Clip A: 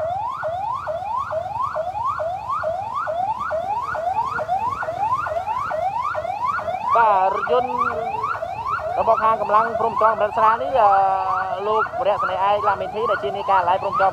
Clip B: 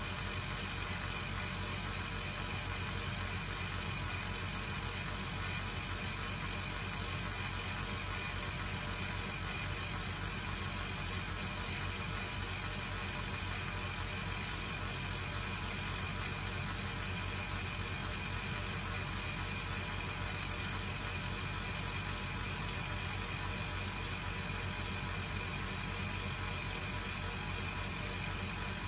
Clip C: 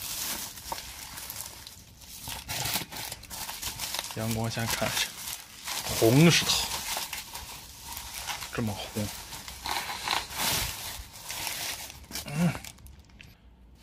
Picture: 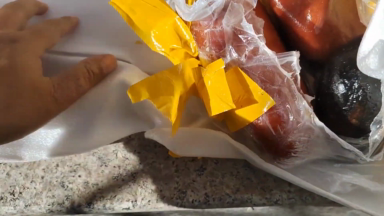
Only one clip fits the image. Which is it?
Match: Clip C